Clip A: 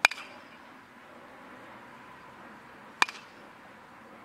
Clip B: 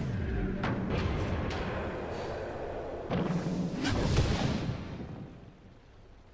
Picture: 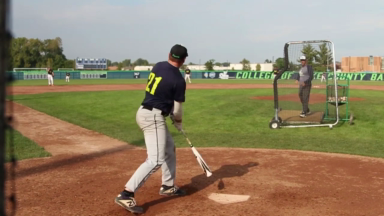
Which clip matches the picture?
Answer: A